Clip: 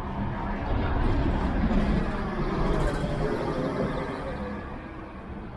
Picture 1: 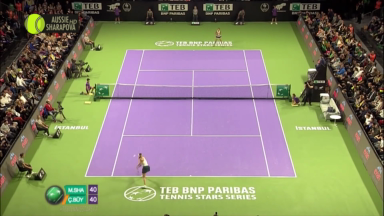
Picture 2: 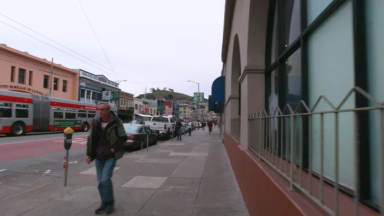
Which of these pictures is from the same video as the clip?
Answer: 2